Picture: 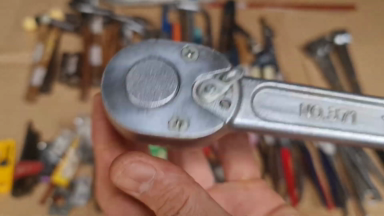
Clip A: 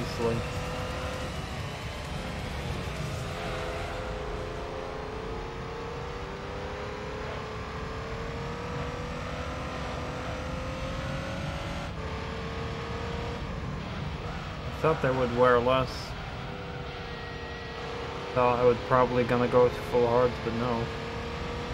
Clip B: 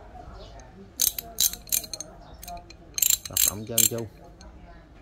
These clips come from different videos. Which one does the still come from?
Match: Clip B